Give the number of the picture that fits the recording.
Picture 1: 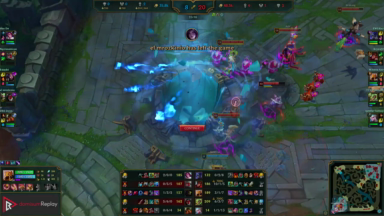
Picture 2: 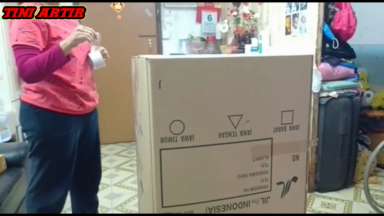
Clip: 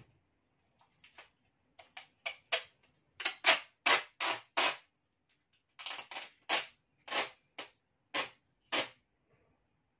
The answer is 2